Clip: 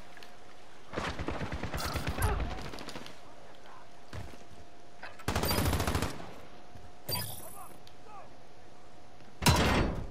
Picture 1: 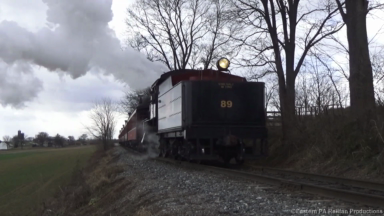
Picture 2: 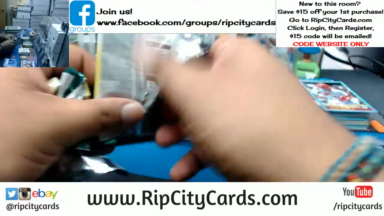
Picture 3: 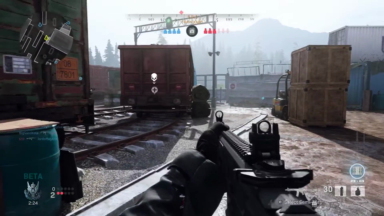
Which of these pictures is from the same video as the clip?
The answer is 3